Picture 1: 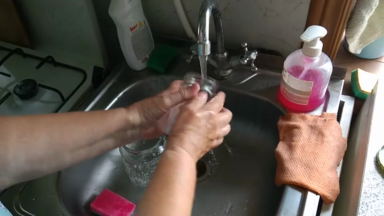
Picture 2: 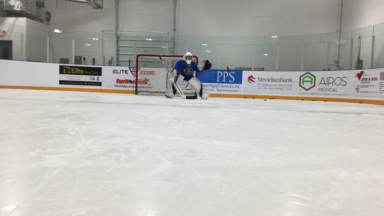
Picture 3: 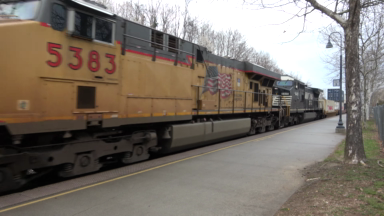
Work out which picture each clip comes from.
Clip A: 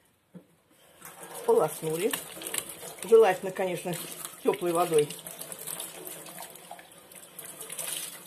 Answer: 1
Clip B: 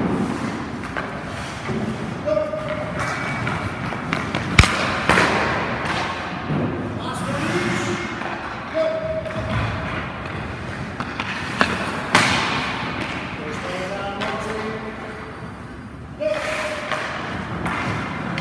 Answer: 2